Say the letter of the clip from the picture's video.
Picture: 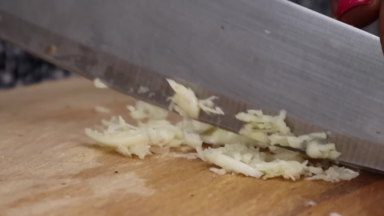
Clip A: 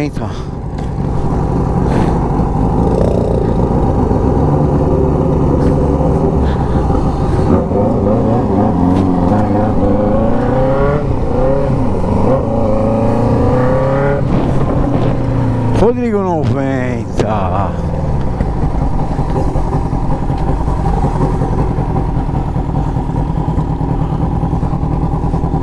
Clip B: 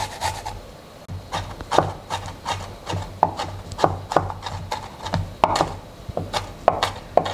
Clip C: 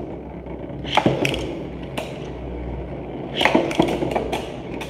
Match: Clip B